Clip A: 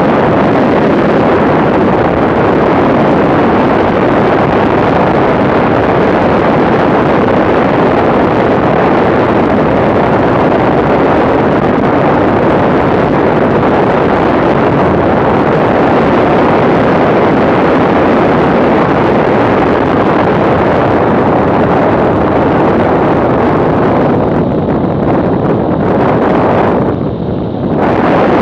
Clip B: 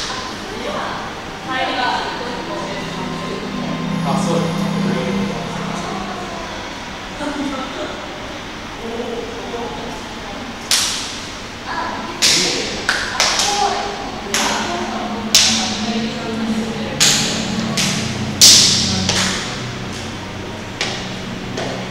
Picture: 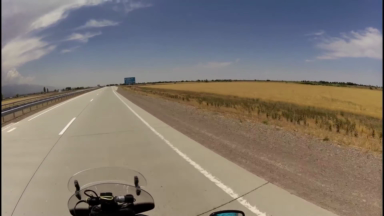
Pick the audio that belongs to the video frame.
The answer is A